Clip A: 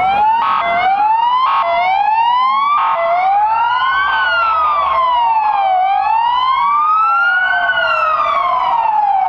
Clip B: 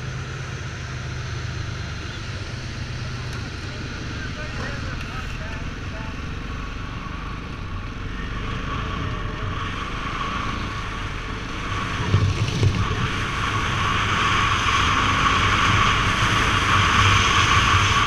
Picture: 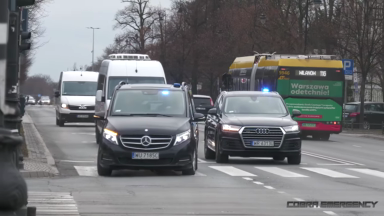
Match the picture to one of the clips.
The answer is A